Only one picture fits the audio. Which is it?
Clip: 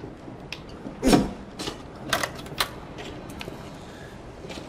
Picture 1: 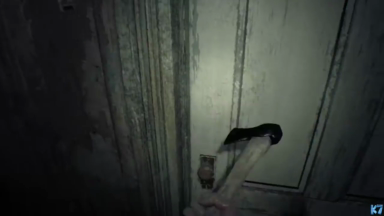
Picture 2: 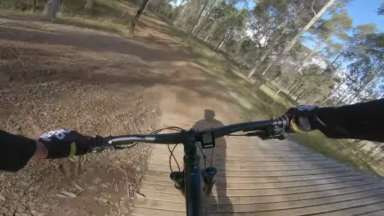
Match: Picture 1